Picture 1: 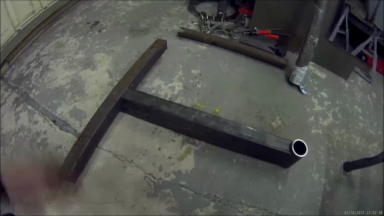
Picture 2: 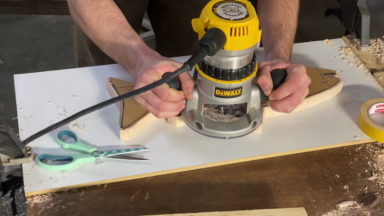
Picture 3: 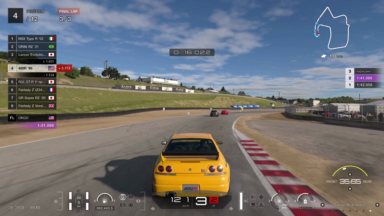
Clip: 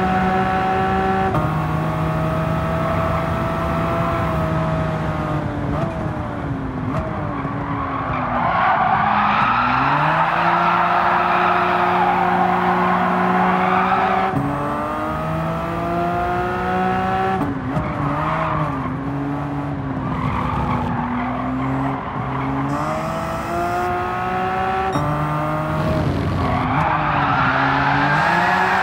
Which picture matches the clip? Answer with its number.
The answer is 3